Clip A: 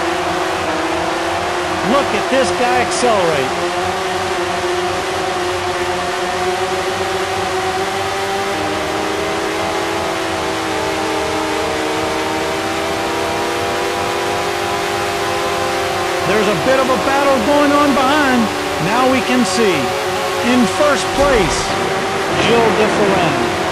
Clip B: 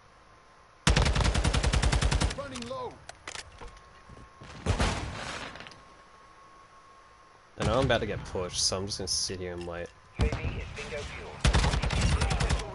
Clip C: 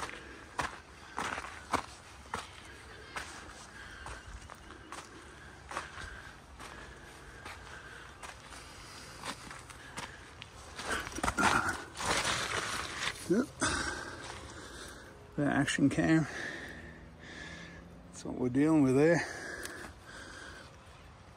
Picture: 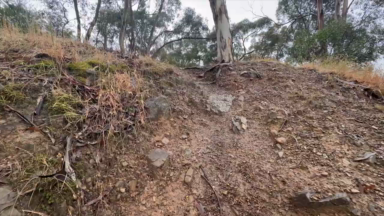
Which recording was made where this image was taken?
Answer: C